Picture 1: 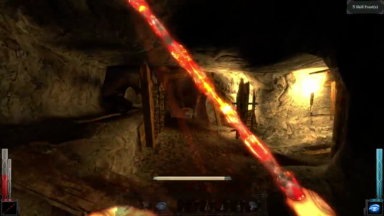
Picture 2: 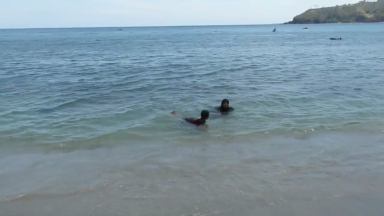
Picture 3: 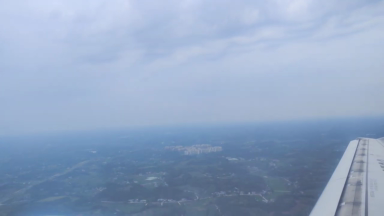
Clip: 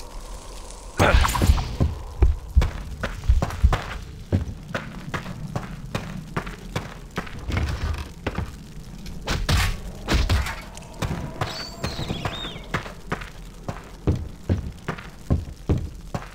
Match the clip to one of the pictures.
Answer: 1